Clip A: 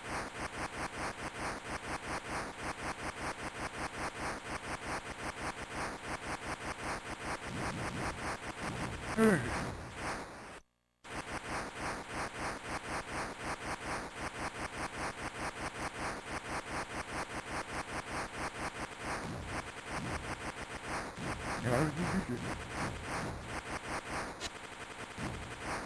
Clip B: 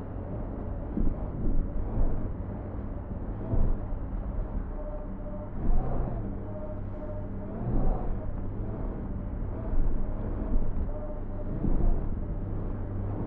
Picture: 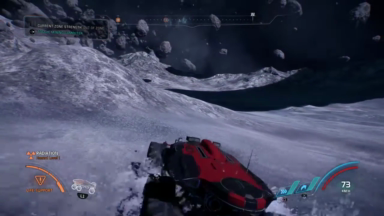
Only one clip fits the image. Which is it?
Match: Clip B